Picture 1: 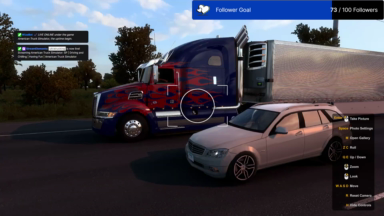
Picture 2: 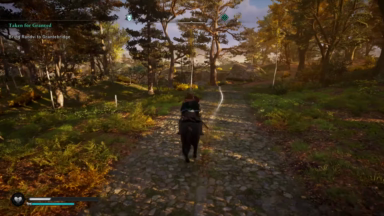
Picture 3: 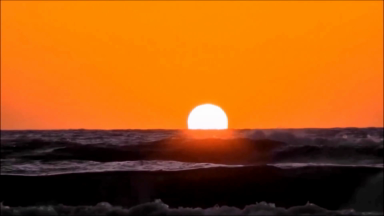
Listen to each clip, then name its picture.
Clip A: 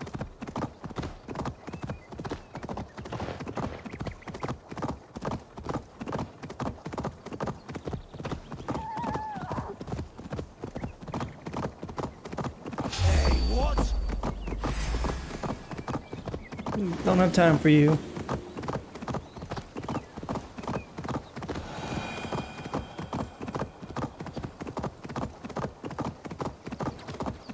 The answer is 2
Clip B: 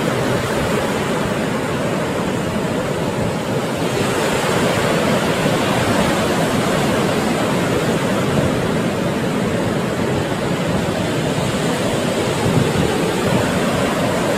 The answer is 3